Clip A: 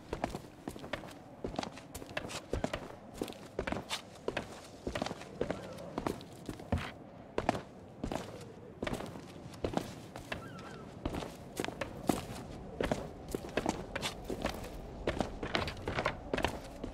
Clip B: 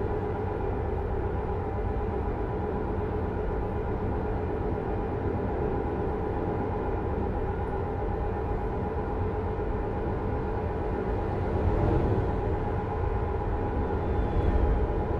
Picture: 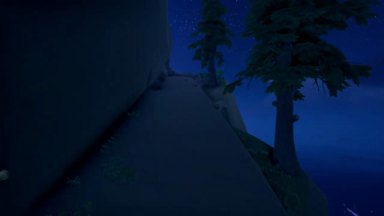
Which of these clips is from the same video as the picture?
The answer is A